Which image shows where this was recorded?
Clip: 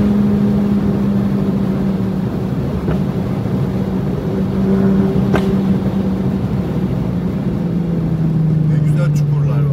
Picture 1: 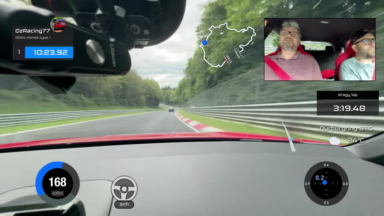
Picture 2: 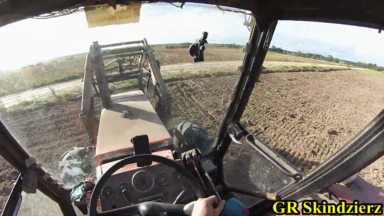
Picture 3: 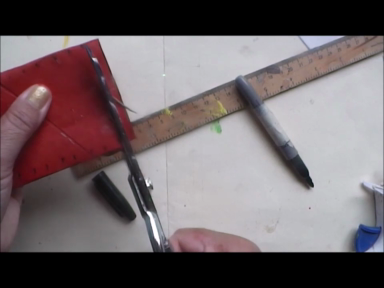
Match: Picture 1